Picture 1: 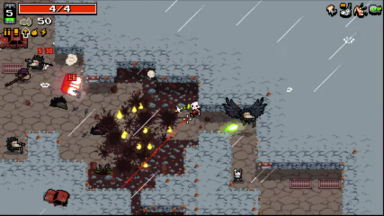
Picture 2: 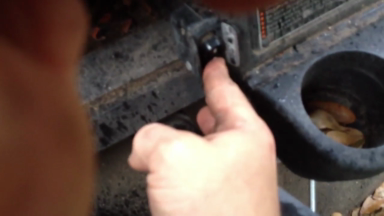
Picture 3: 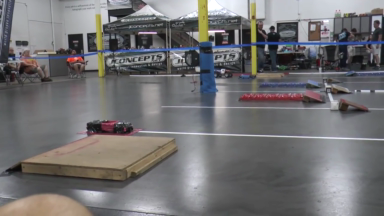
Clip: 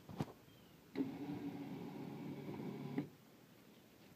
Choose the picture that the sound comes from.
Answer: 2